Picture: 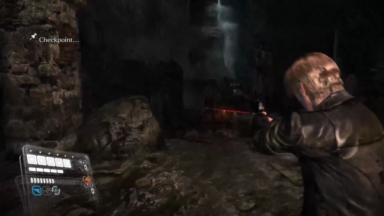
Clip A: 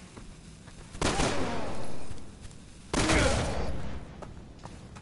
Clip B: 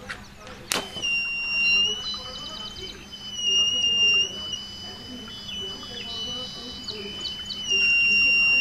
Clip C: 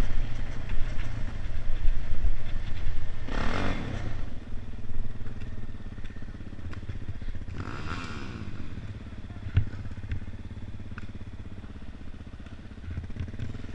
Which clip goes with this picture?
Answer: A